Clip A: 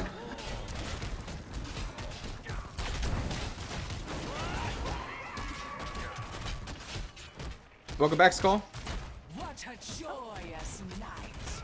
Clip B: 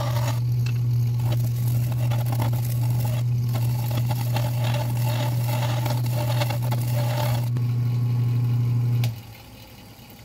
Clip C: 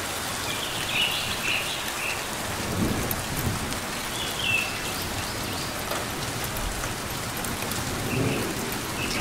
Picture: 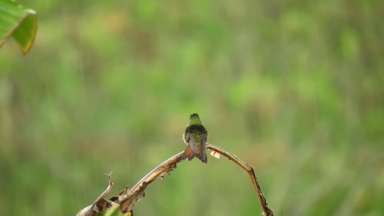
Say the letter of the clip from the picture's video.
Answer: C